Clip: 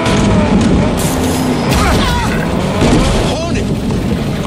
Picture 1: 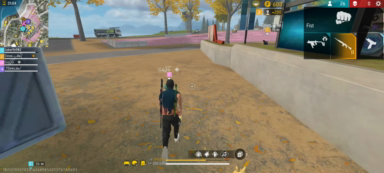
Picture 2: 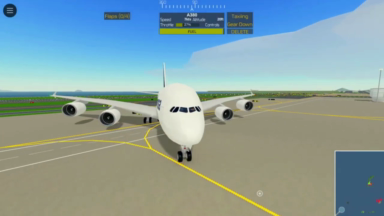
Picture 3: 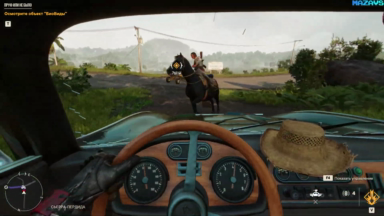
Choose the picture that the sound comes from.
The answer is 3